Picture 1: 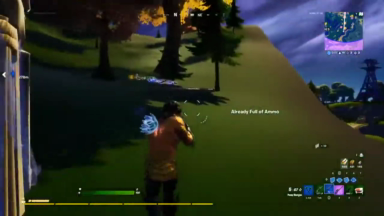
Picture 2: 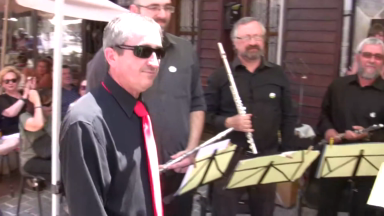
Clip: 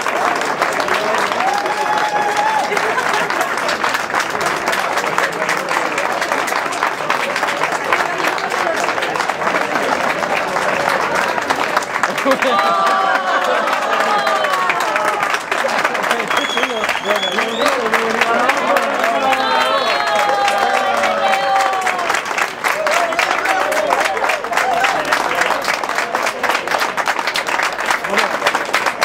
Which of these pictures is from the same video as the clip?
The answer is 2